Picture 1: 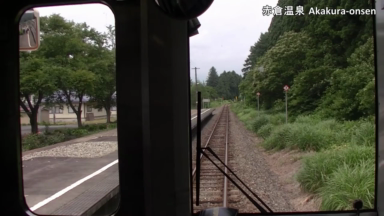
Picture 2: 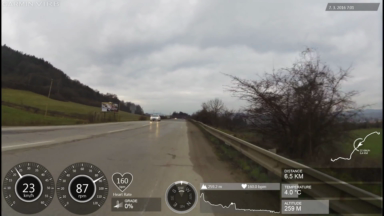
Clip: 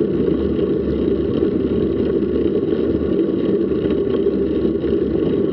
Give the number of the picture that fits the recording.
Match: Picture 2